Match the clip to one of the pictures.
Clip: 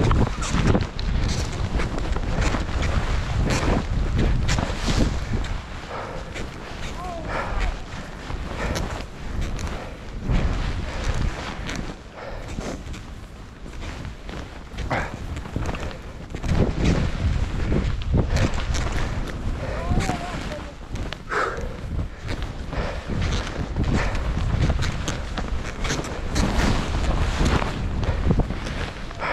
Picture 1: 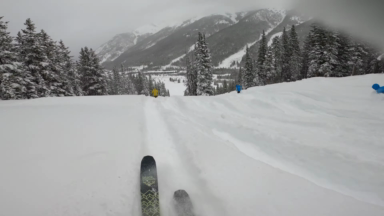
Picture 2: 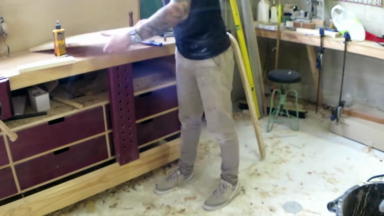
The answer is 1